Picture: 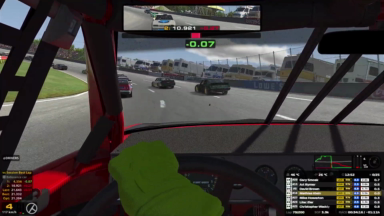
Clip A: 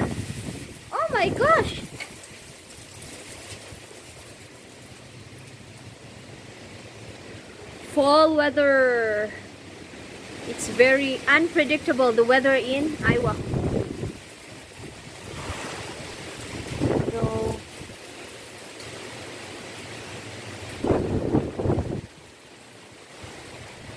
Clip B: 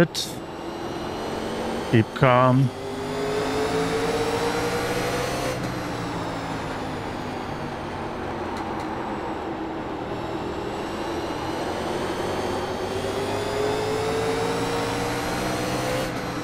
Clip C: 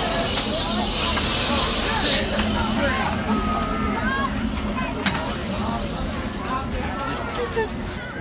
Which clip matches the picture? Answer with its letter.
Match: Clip B